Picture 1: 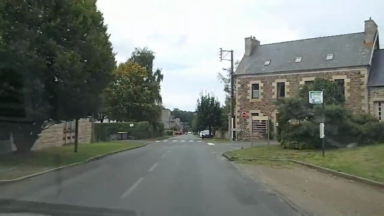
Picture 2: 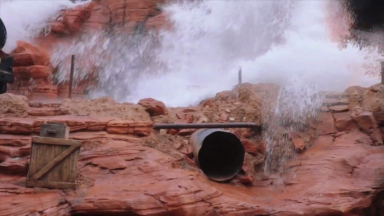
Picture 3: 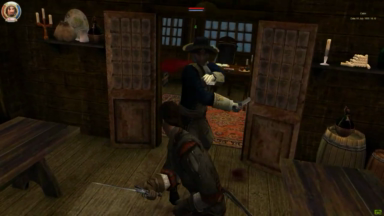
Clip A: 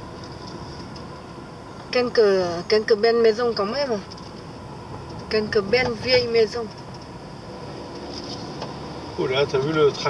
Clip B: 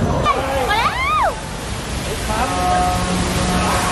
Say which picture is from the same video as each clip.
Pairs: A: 1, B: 2